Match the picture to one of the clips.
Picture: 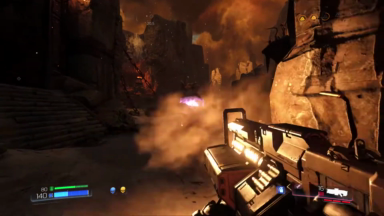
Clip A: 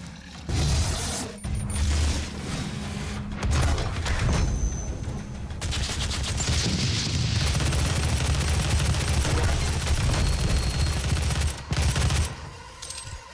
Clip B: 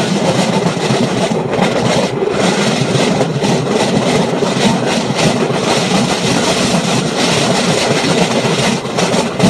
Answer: A